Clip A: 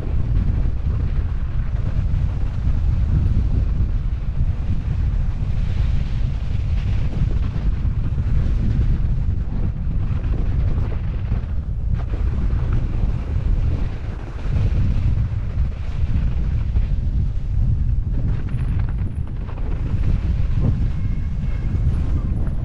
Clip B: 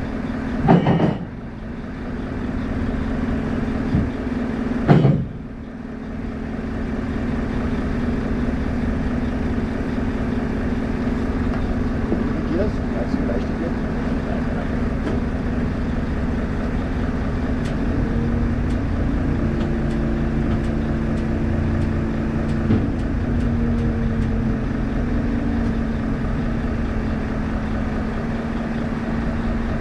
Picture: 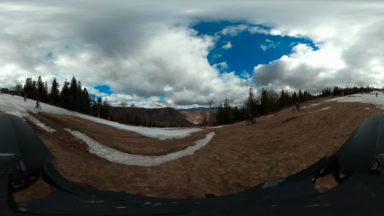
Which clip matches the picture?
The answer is A